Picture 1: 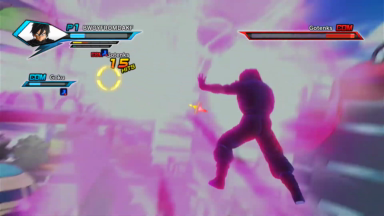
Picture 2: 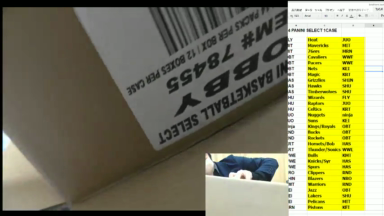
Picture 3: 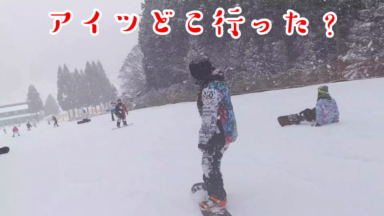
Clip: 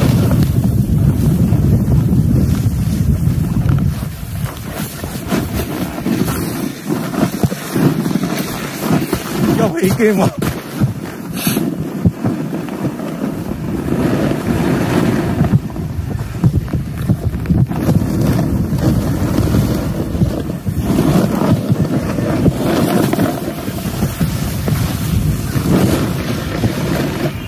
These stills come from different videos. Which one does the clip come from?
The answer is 3